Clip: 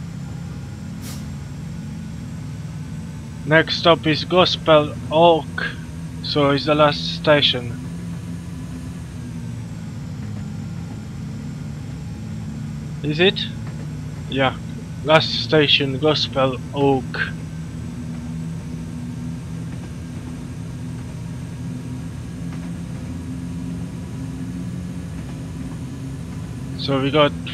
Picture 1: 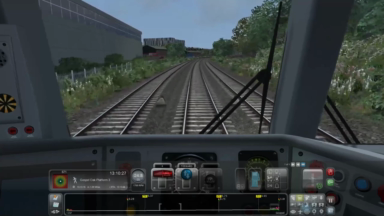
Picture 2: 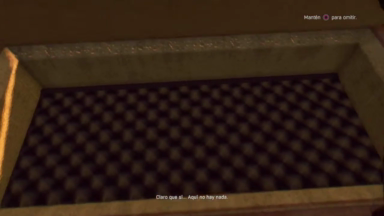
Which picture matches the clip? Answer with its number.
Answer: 1